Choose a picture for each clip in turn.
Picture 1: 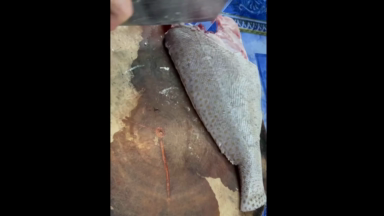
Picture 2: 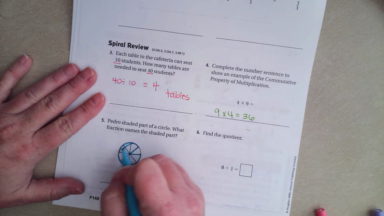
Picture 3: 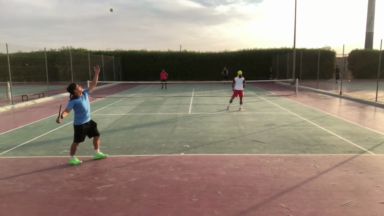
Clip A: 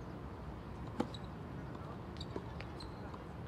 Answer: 3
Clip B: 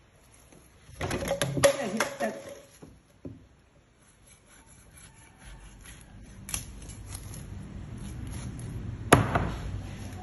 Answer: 1